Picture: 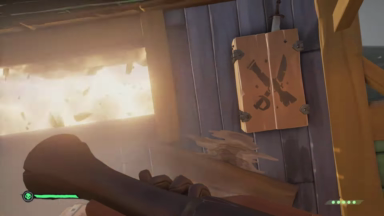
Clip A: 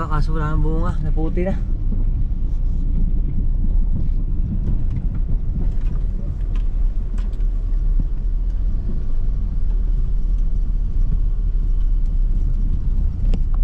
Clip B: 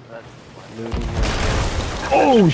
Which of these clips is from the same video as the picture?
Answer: B